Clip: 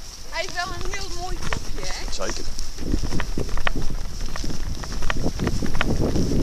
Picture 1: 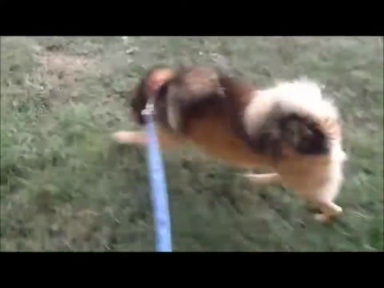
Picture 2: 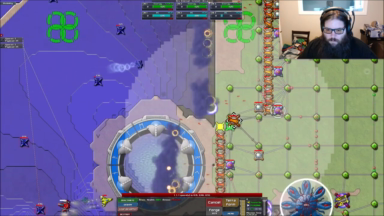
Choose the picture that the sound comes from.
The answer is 1